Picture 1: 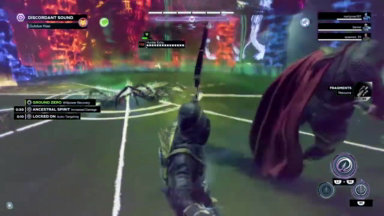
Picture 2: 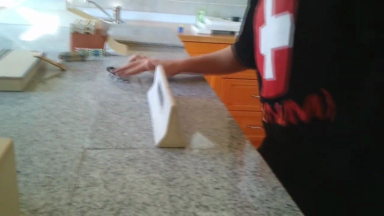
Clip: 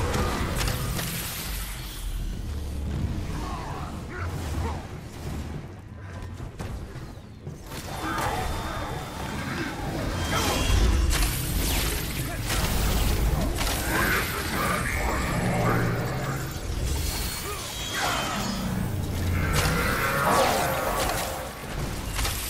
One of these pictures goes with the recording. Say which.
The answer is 1